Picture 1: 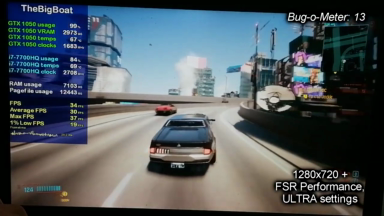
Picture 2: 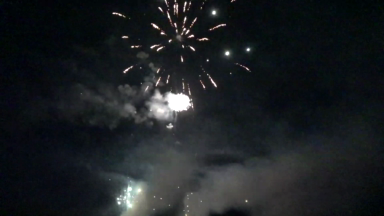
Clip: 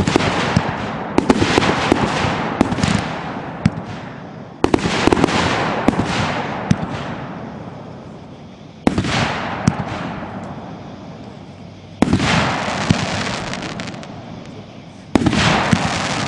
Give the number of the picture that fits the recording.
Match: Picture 2